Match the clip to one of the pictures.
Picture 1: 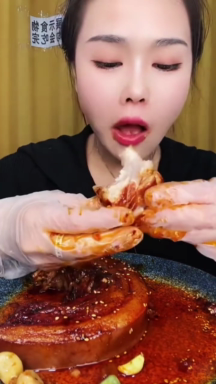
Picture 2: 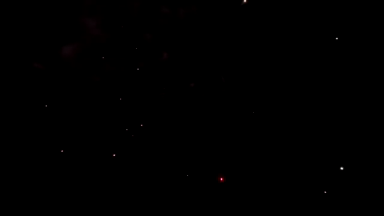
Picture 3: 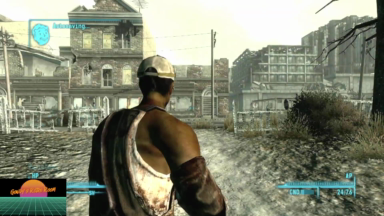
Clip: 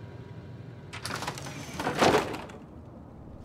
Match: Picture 3